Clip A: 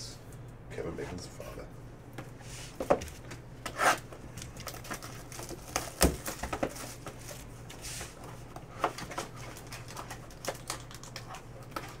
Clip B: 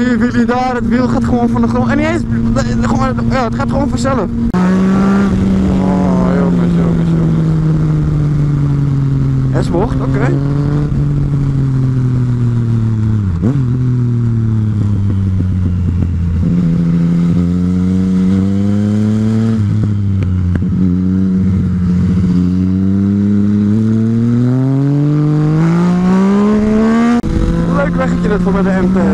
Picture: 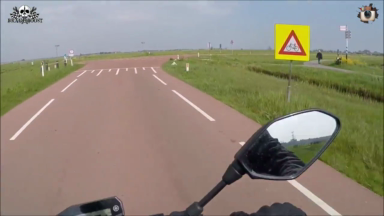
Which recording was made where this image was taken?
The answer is B